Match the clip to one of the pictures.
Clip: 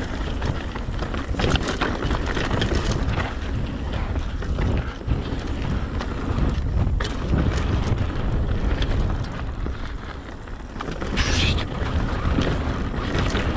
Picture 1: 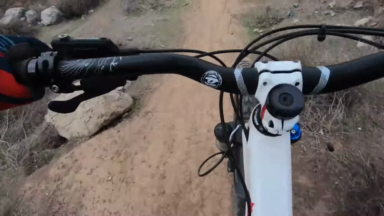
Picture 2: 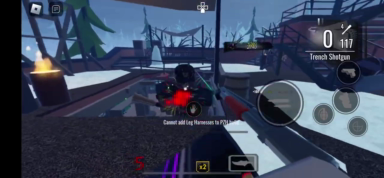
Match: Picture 1